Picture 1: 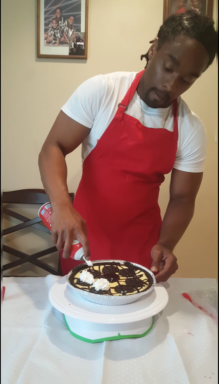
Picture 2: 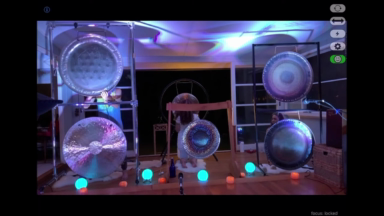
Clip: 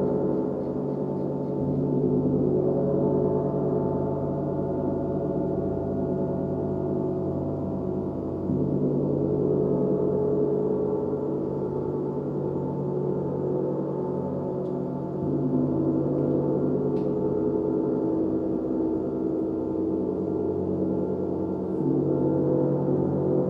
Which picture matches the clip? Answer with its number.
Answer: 2